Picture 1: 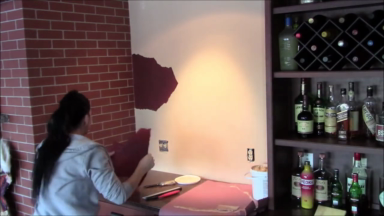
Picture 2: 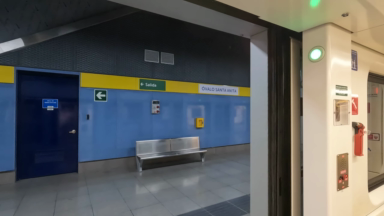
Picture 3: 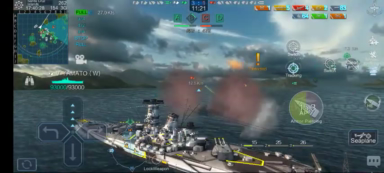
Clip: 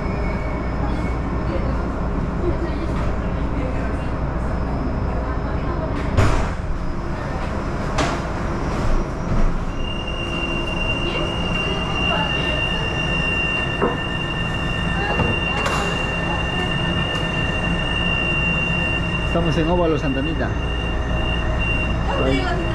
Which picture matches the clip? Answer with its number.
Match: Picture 2